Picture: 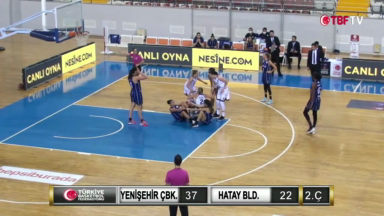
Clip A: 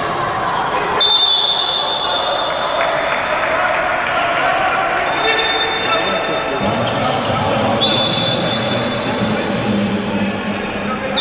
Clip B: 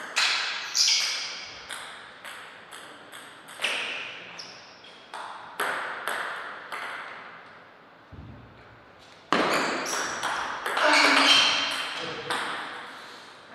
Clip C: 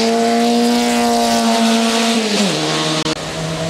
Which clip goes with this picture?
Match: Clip A